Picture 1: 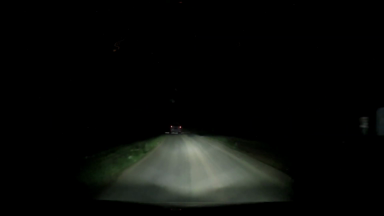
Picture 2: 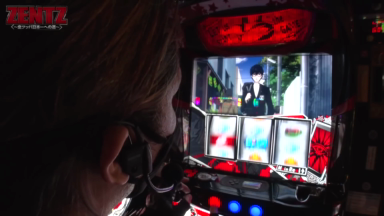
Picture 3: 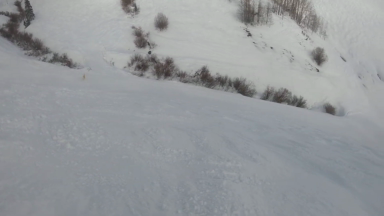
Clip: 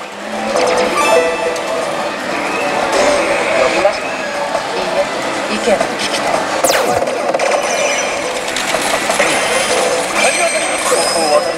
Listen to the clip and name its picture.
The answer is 2